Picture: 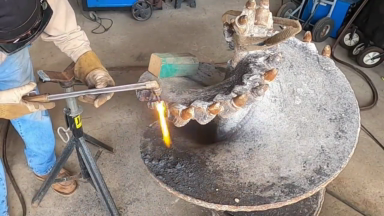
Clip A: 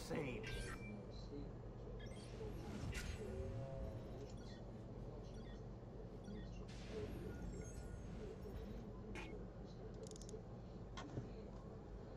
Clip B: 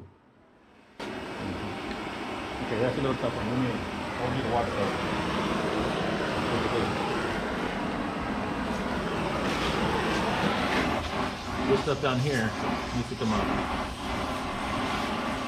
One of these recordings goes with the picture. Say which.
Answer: B